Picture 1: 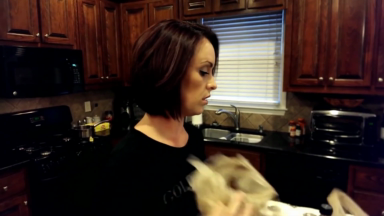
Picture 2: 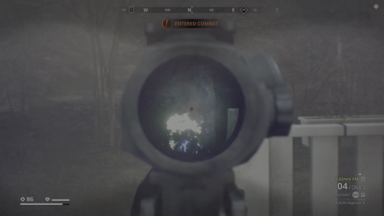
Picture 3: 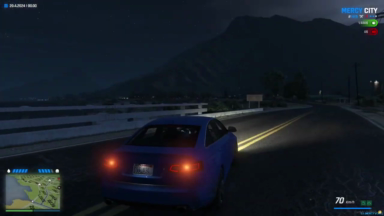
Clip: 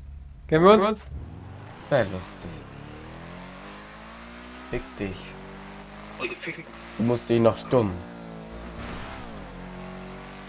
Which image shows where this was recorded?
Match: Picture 3